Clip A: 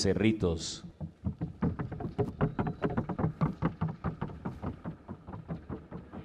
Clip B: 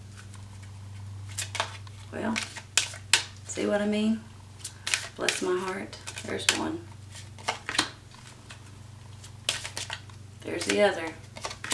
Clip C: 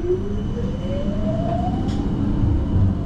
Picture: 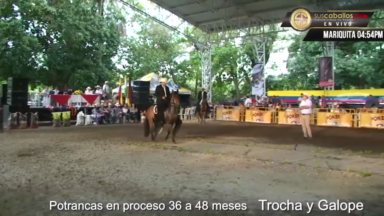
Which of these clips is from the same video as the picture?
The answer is A